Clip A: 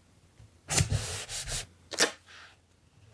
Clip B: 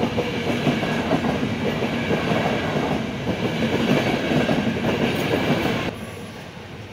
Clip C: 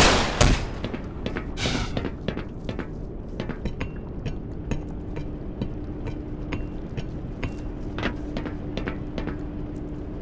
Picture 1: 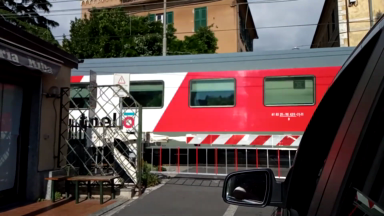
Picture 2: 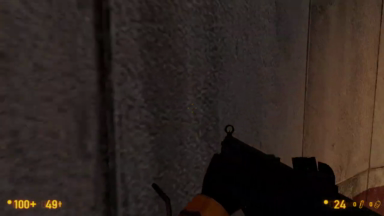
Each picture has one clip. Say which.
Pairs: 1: B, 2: C